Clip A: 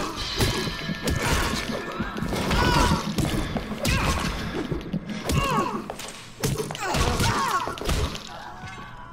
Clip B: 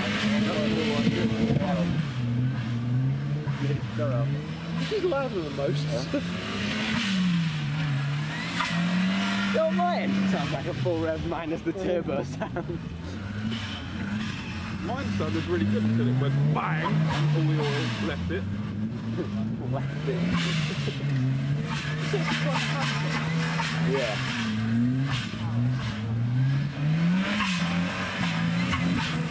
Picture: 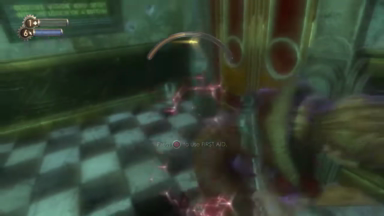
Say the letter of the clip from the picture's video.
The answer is A